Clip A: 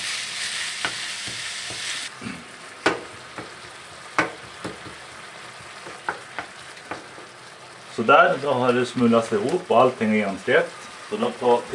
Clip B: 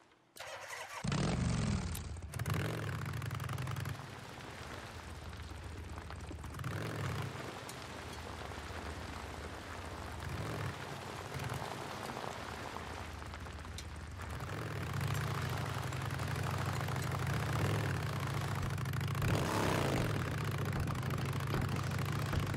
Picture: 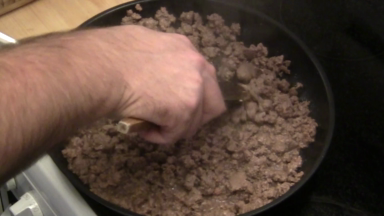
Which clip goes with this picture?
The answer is A